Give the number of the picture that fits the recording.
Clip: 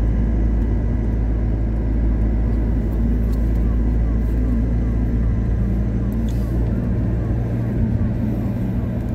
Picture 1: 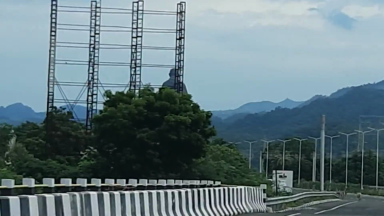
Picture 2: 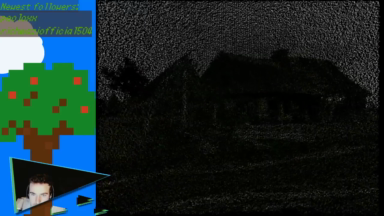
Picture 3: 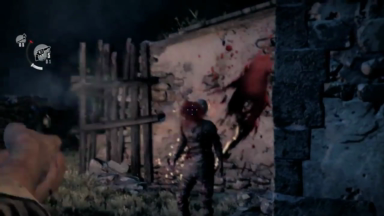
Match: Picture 1